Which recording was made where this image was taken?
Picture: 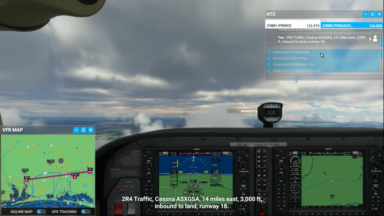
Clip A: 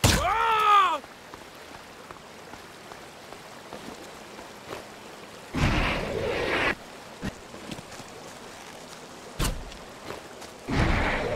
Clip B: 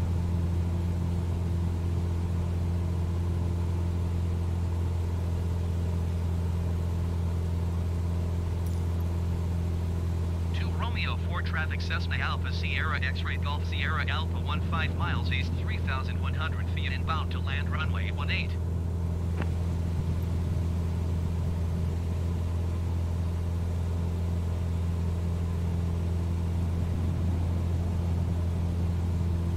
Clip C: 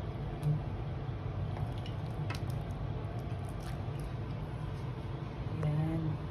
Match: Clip B